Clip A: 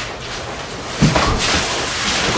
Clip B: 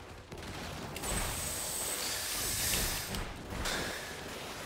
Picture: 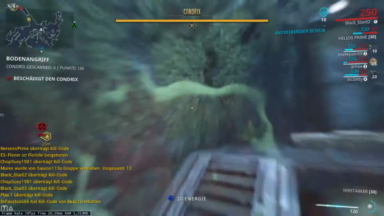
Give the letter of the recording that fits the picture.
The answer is B